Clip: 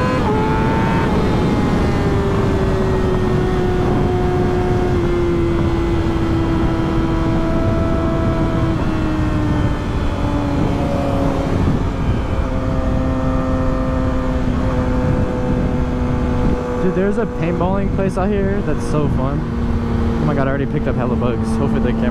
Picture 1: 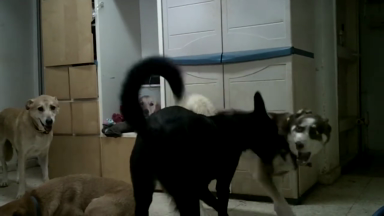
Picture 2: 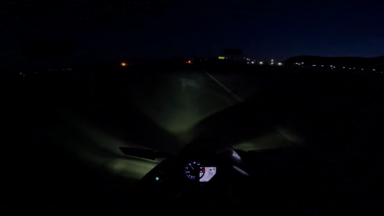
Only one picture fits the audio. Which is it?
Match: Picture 2